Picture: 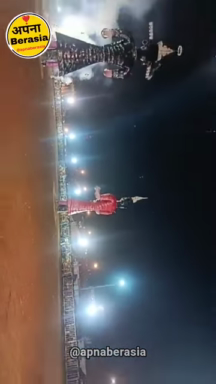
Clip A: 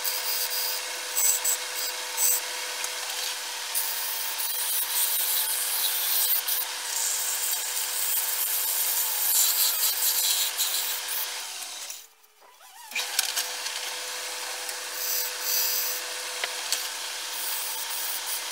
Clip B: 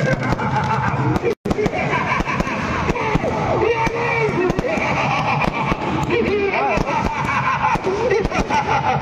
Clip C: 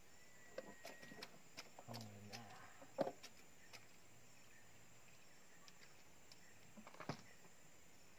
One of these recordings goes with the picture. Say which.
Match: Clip B